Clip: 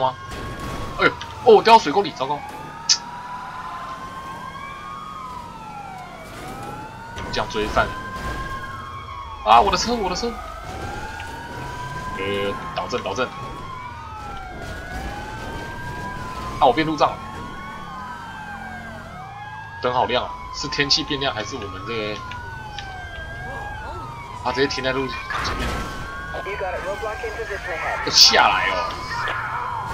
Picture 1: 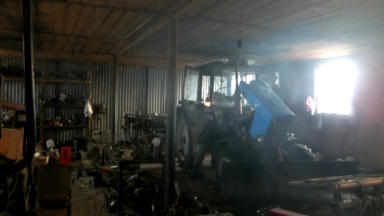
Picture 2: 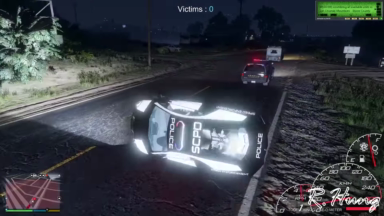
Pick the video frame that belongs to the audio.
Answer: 2